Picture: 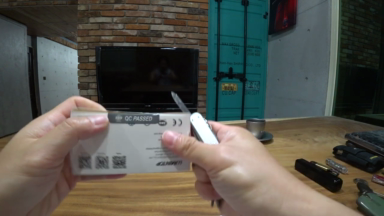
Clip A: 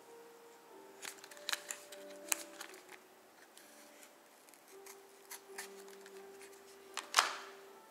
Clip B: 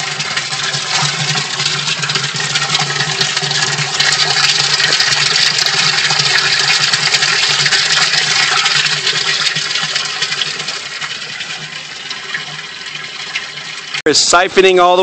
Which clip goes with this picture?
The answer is A